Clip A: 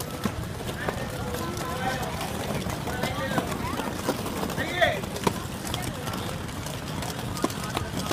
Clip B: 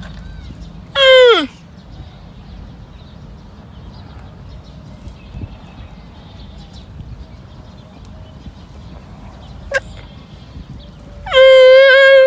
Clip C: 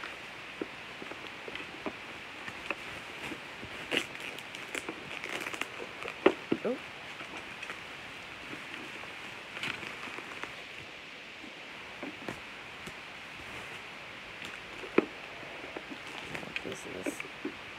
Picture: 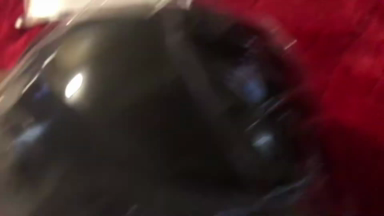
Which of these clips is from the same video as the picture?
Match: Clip C